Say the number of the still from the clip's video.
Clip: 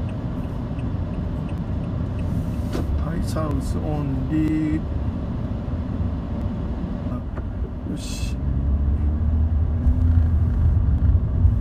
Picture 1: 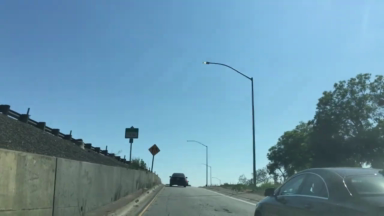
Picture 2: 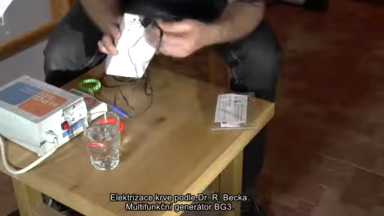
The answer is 1